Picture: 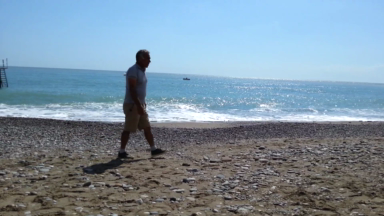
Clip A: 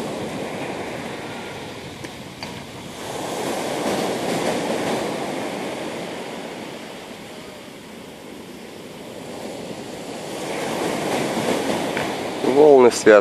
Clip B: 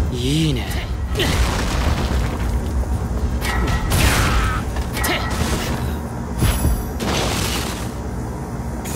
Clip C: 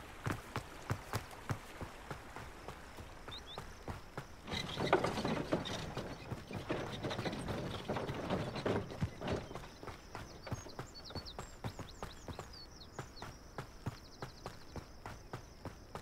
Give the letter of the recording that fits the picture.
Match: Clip A